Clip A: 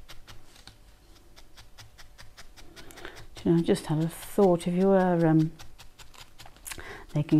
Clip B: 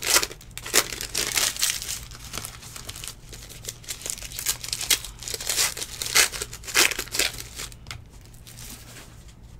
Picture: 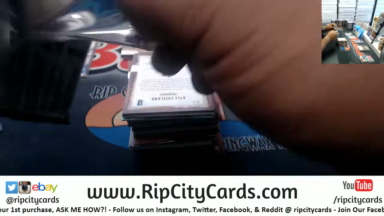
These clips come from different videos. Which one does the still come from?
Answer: B